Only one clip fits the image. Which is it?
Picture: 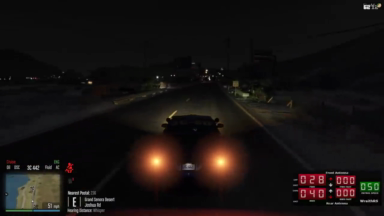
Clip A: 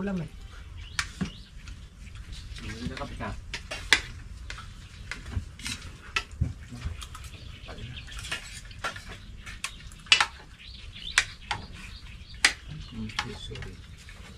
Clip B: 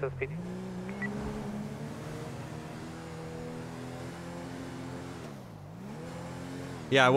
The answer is B